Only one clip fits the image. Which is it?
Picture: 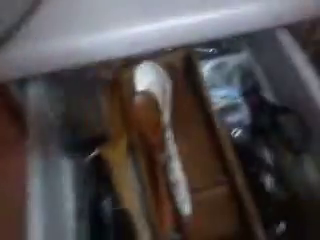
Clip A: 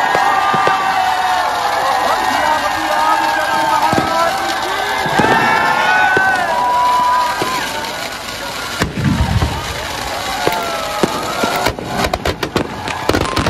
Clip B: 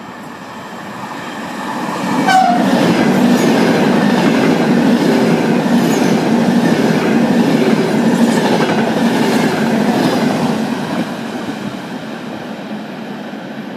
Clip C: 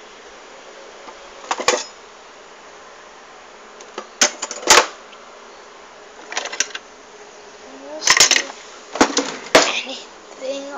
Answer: C